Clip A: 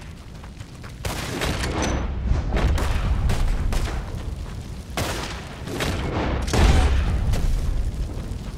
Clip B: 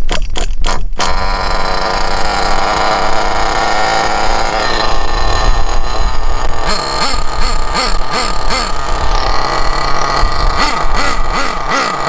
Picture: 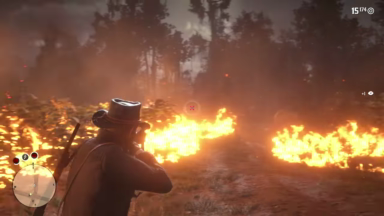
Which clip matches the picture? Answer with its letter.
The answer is A